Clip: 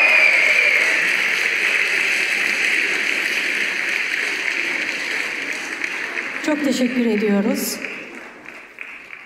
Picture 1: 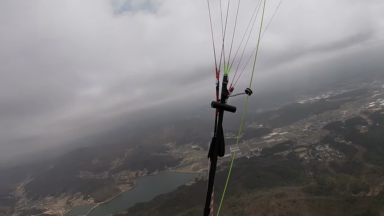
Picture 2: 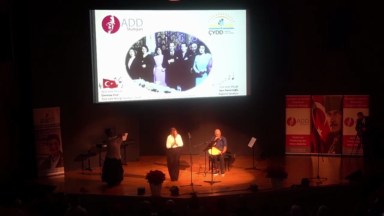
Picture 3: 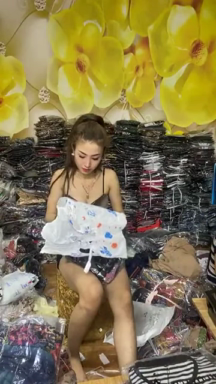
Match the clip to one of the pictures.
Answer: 2